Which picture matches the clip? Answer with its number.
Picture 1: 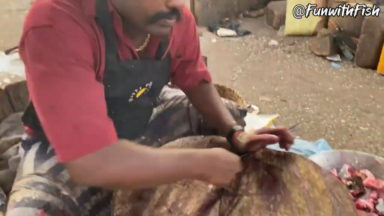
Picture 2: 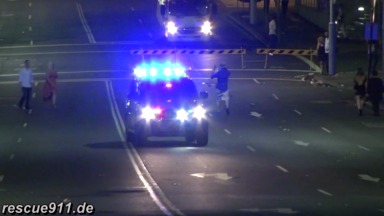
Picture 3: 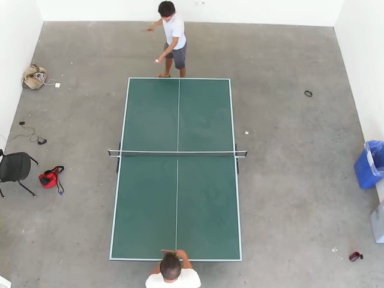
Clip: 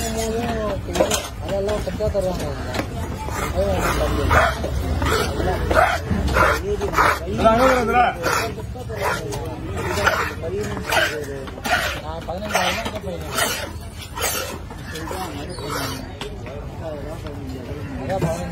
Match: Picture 1